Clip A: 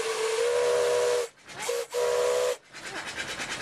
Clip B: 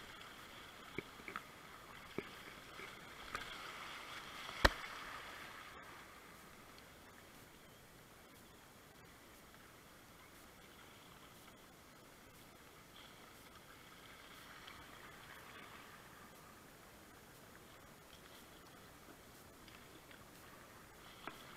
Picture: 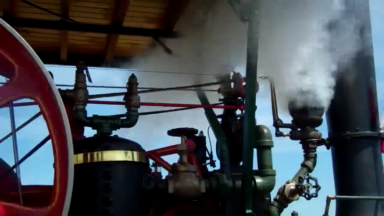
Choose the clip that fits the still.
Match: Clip A